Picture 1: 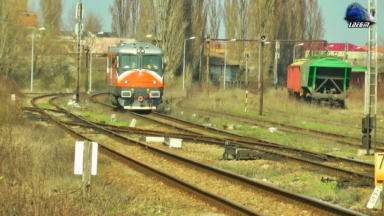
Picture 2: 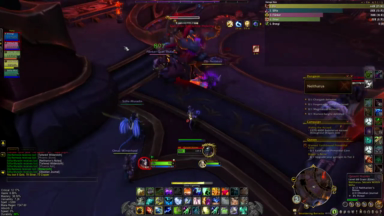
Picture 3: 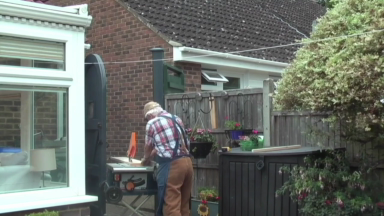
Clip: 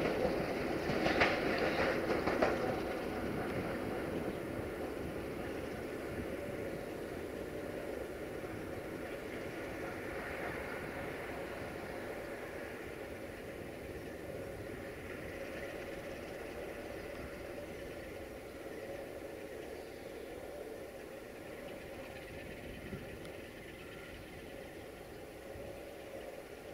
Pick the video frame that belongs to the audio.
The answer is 1